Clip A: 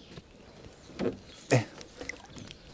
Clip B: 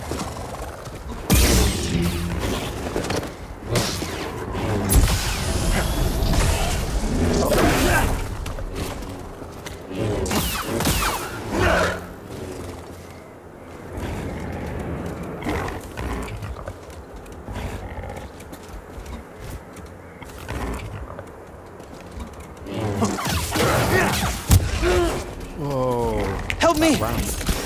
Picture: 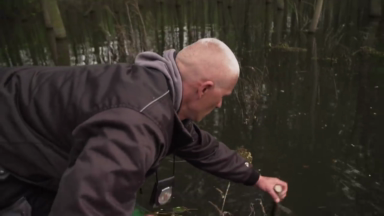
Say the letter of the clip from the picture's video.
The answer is A